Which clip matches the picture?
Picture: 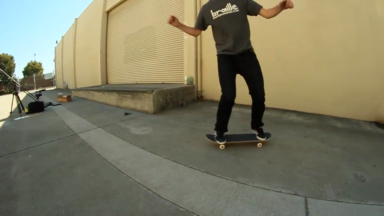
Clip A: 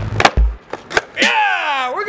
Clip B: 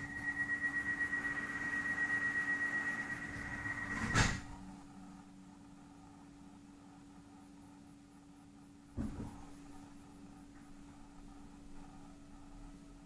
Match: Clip A